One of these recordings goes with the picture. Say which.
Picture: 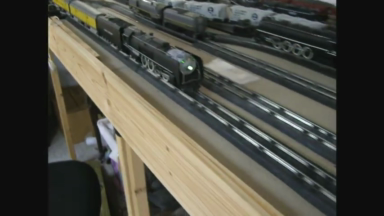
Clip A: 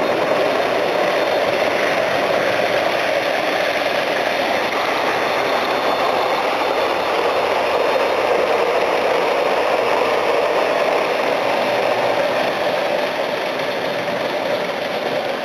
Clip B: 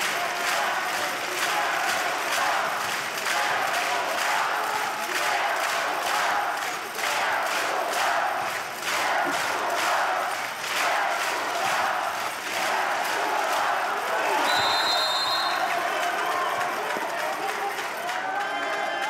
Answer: A